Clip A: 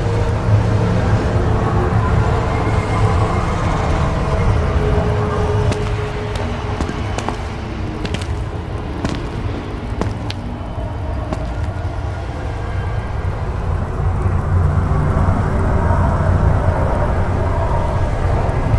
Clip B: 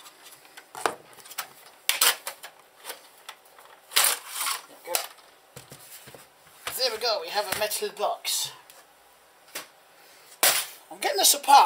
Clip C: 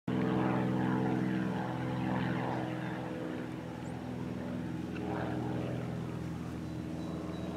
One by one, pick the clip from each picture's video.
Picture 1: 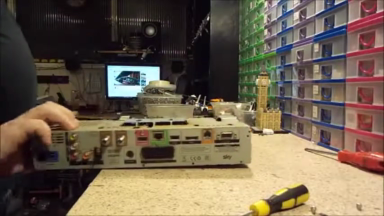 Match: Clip B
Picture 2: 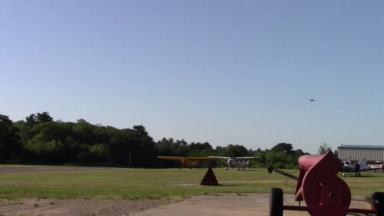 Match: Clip C